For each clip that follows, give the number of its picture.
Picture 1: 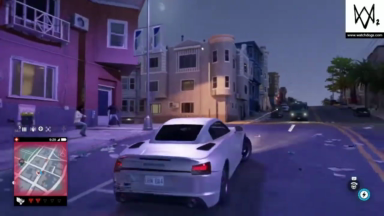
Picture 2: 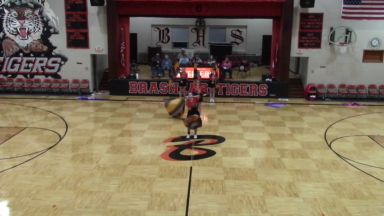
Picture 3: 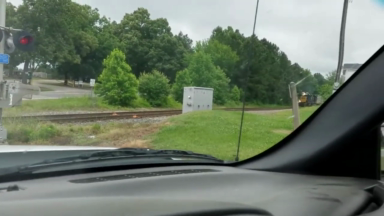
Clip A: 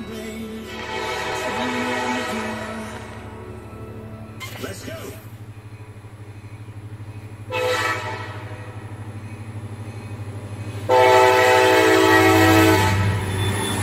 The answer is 3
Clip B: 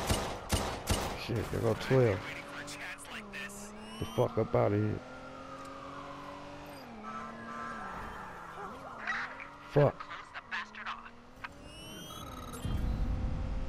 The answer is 1